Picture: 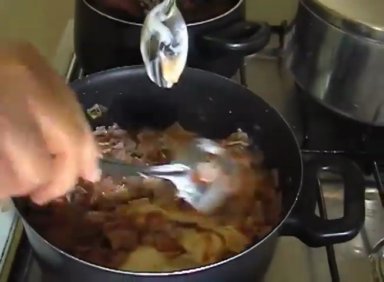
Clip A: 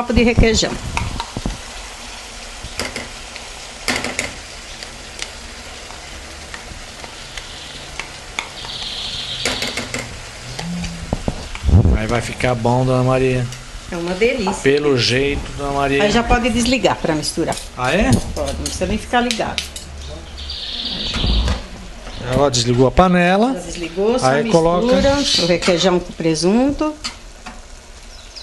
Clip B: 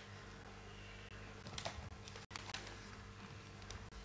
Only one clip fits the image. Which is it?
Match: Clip A